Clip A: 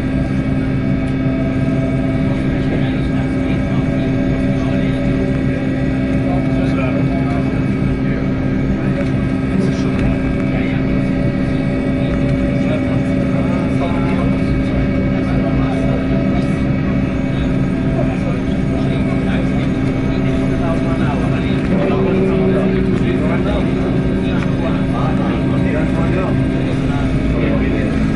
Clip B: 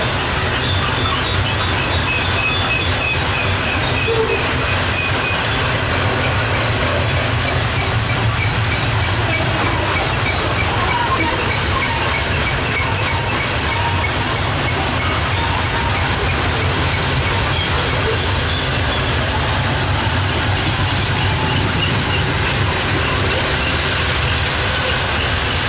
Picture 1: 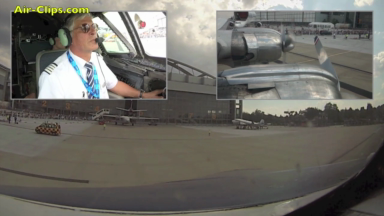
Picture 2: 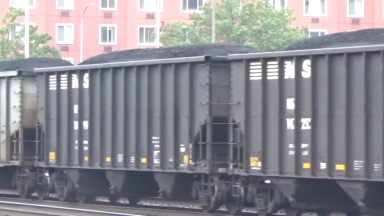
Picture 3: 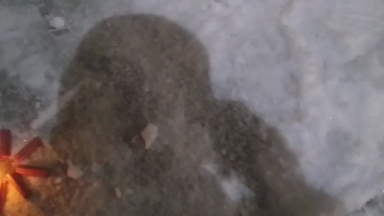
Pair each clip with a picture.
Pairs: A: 1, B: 2